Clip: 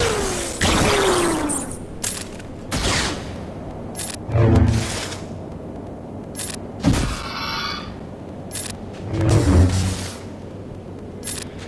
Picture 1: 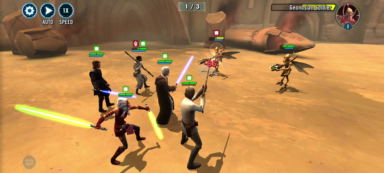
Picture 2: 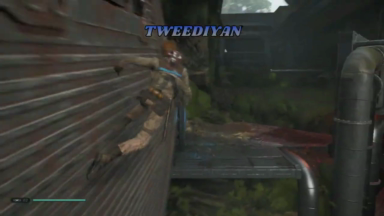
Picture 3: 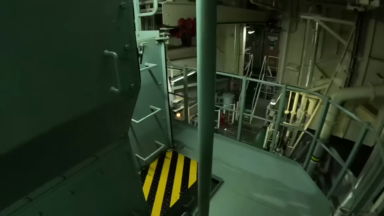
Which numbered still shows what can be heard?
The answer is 1